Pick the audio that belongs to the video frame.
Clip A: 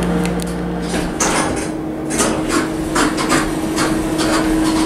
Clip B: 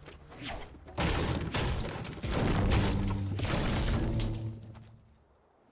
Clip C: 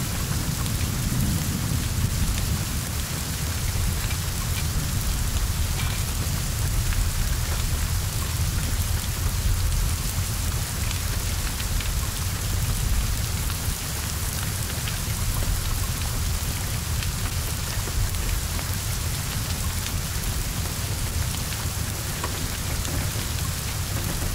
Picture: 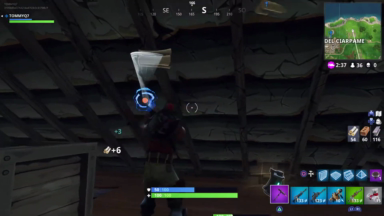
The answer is B